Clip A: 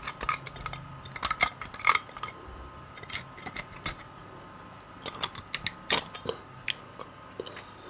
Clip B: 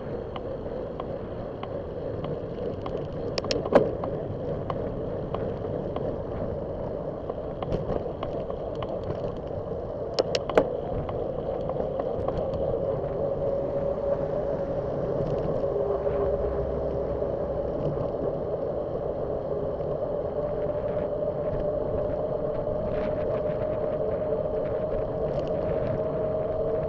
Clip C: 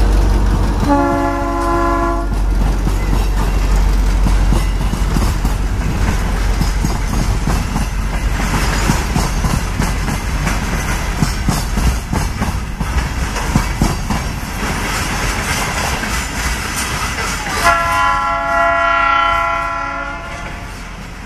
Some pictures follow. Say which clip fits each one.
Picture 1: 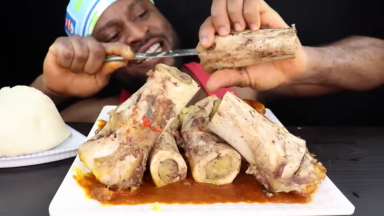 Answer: A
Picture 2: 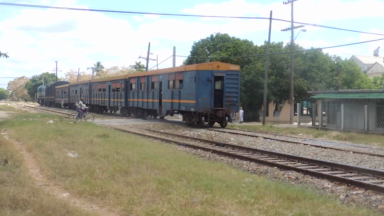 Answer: C